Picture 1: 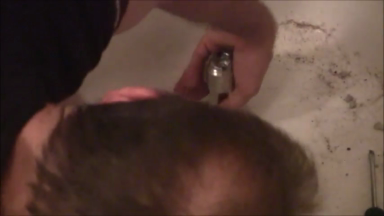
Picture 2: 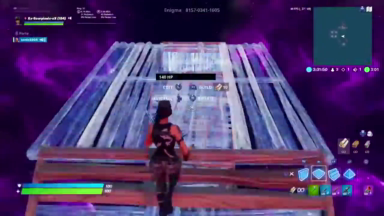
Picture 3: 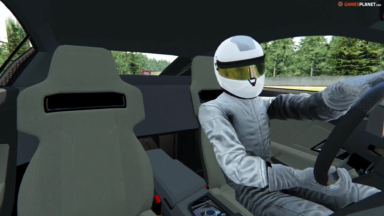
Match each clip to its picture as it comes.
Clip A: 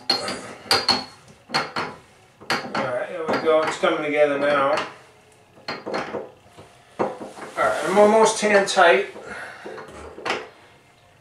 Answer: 1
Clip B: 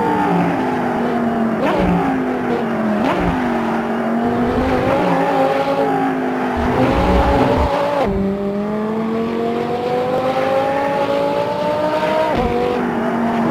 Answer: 3